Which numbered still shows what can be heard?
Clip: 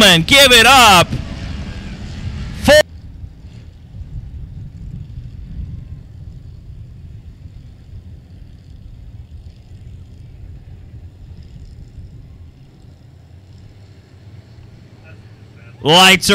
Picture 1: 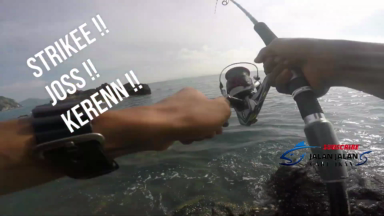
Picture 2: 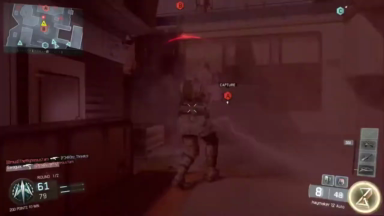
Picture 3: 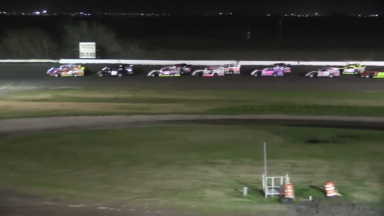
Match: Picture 3